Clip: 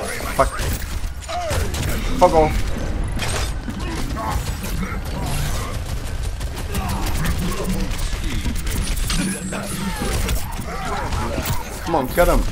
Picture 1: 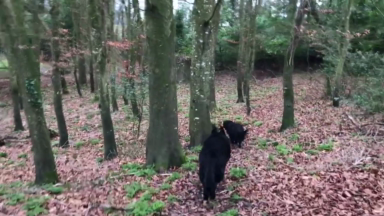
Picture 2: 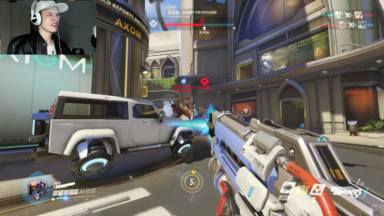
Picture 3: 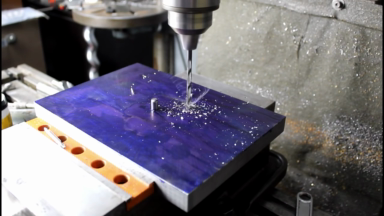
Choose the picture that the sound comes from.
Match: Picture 2